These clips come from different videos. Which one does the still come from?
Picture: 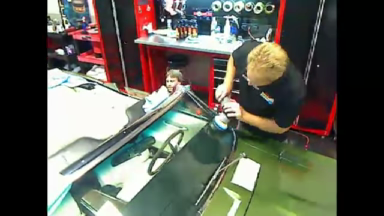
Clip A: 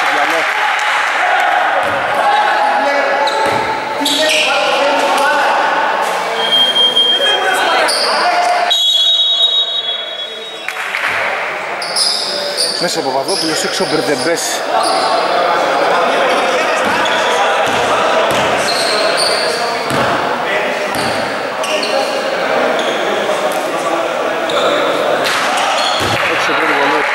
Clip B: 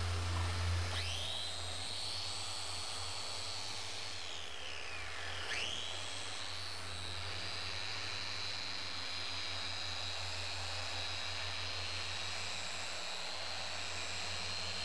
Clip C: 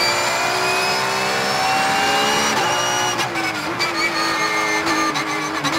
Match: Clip B